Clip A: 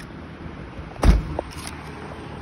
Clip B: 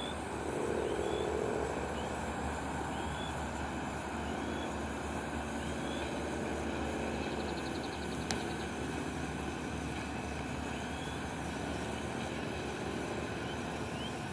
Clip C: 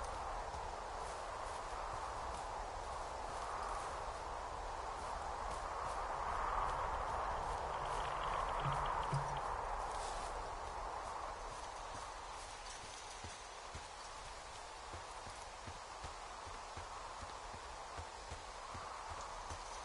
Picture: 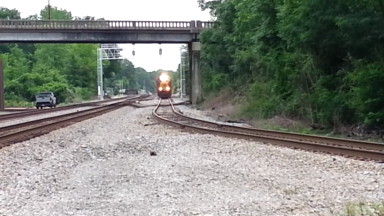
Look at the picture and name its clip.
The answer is B